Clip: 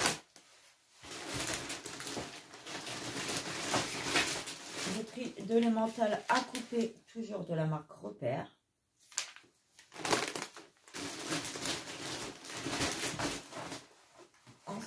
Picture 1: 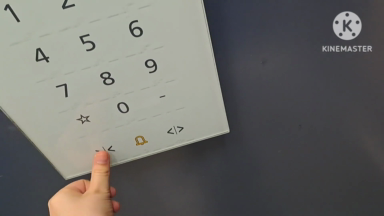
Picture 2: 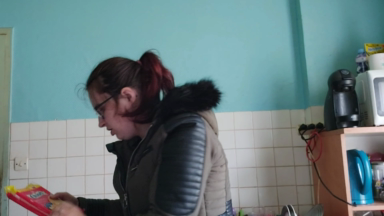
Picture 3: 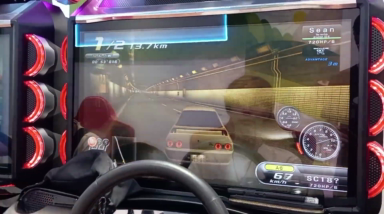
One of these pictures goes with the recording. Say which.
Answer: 2